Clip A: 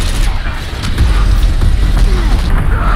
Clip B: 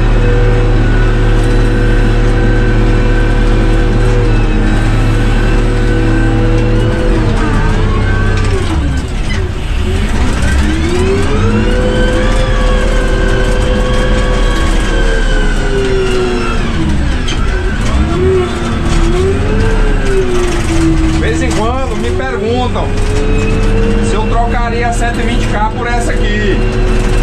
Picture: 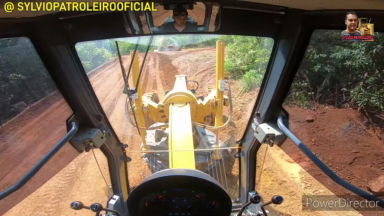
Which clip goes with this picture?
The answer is B